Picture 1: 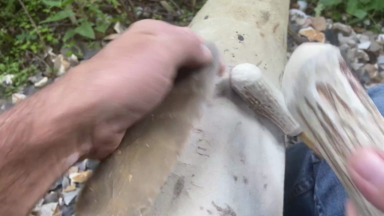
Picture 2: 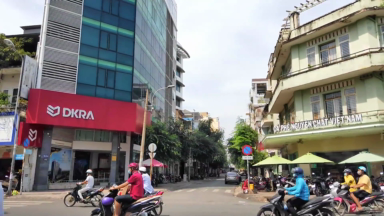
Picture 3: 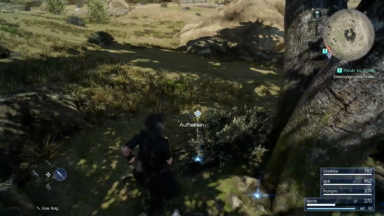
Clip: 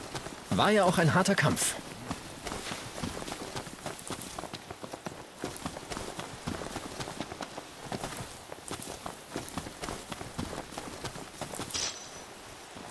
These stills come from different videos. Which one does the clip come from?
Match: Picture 3